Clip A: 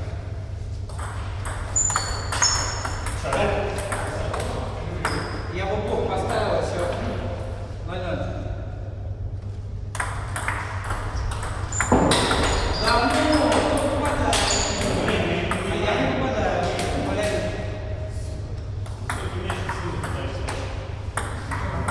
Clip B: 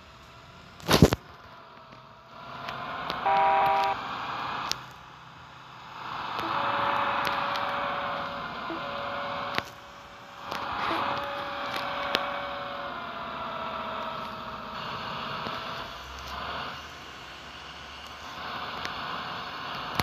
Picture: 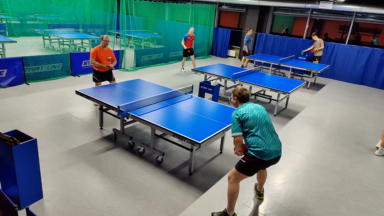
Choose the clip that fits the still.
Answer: A